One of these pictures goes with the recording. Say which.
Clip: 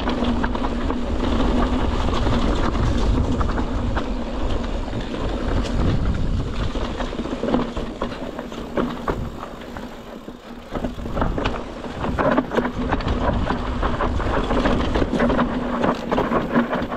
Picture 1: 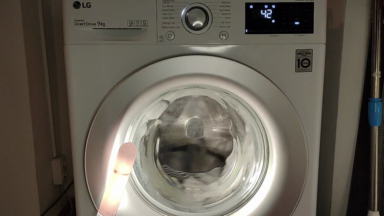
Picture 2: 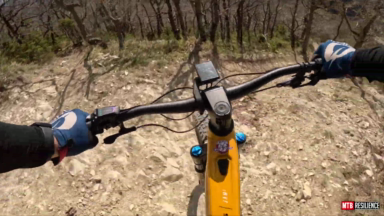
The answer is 2